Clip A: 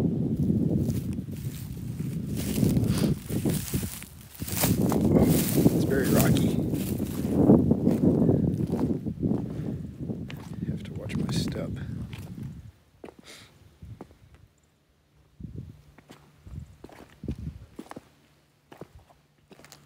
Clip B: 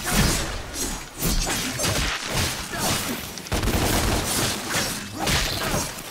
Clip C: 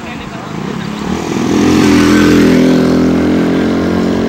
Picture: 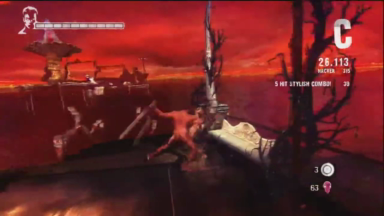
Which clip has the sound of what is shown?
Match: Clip B